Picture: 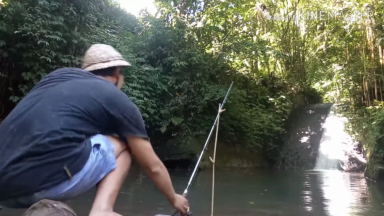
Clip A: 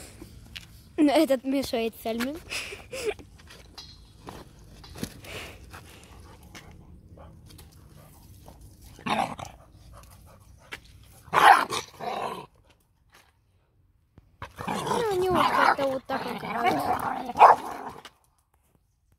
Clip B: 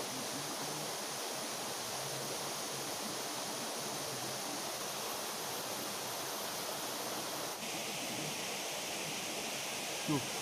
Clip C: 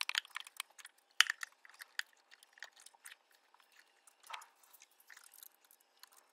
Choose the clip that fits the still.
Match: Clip B